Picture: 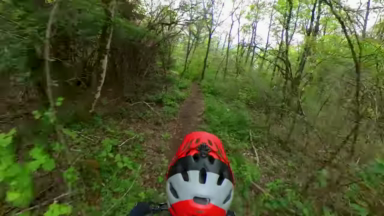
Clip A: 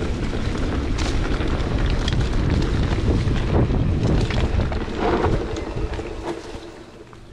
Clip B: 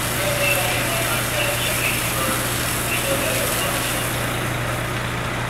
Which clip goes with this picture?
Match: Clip A